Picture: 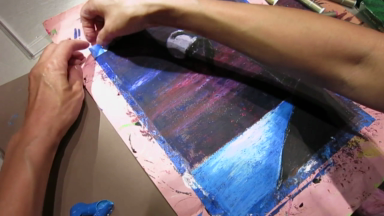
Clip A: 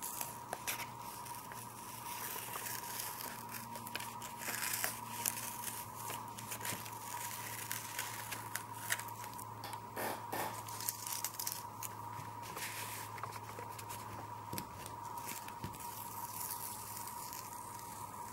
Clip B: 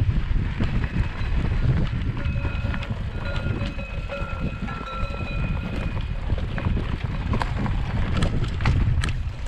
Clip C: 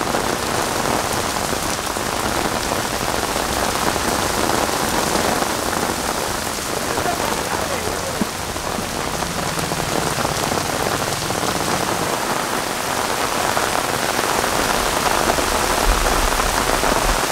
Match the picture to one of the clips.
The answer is A